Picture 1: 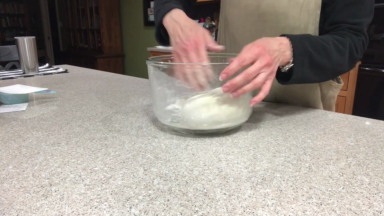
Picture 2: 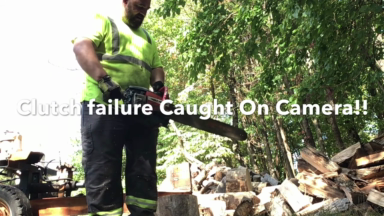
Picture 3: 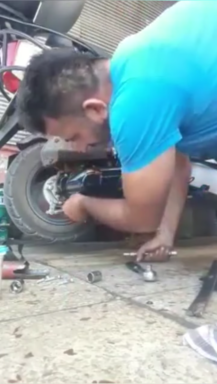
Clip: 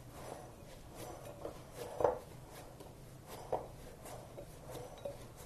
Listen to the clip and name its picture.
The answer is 1